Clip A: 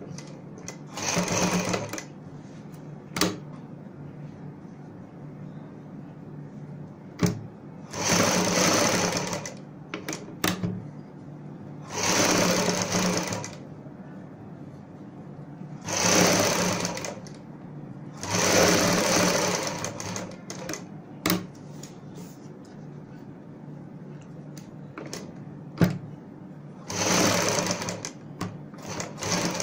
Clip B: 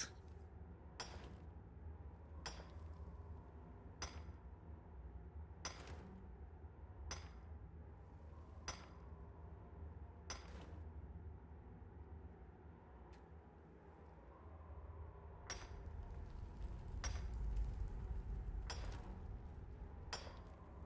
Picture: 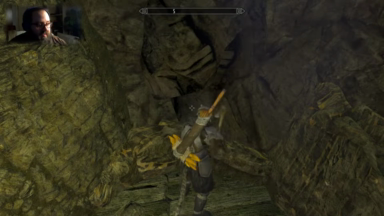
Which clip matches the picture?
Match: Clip B